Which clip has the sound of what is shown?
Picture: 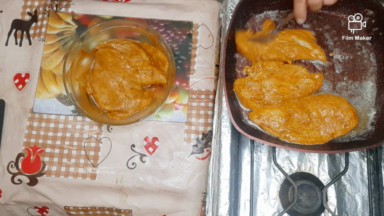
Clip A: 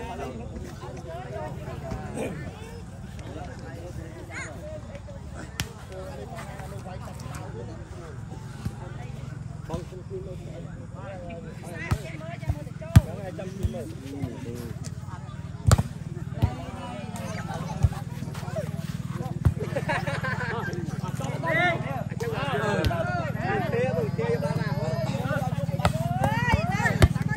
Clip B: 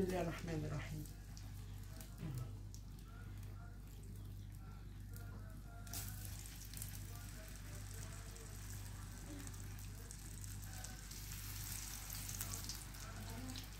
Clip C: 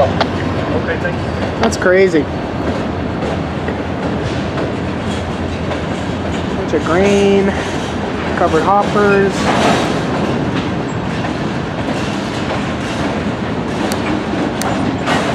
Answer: B